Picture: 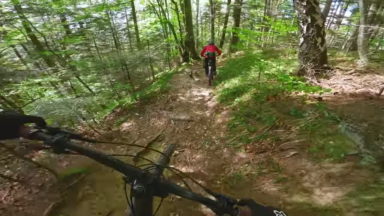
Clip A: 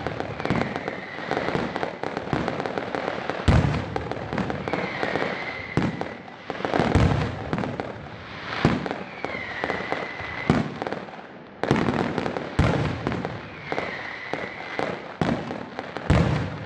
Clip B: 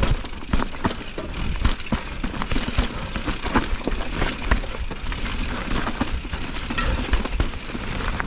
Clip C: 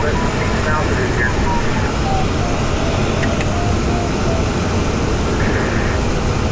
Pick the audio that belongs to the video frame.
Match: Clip B